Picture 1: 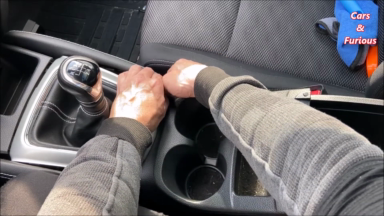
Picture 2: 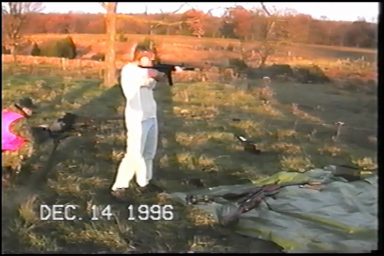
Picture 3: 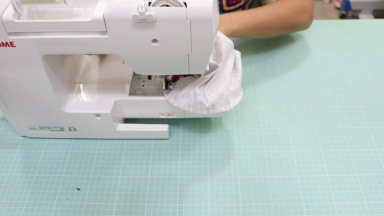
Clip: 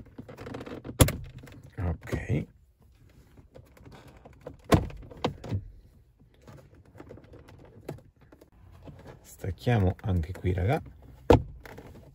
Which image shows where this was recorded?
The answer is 1